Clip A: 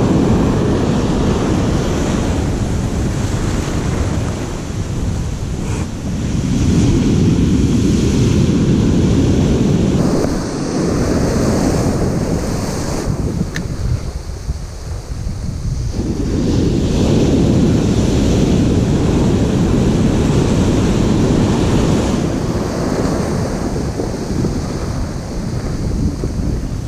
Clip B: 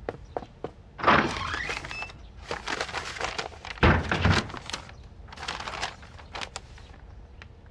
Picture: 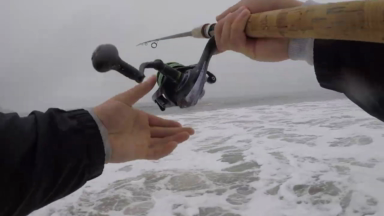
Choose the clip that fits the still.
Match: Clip A